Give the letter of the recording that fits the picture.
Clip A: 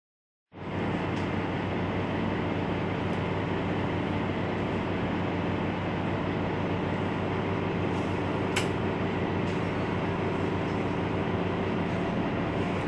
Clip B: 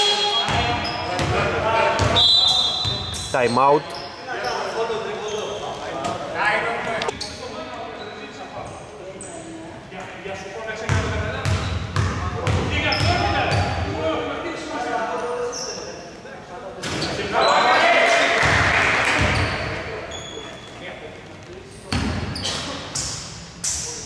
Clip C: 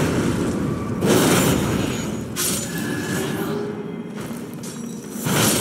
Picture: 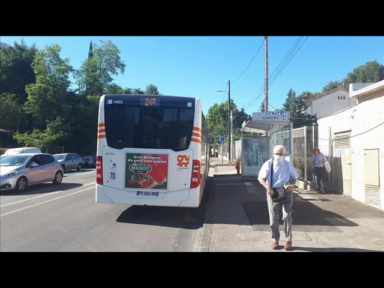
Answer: A